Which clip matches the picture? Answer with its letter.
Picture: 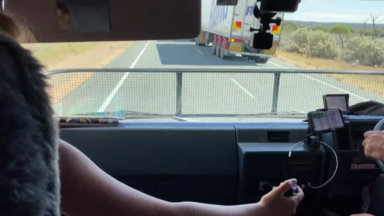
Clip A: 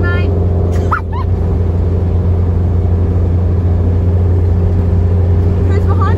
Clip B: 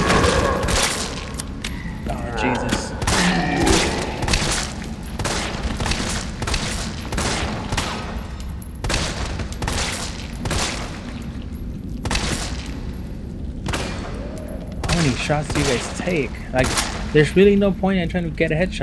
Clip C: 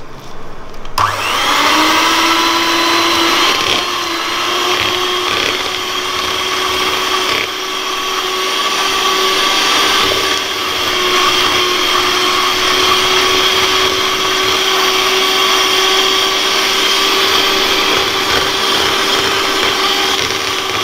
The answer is A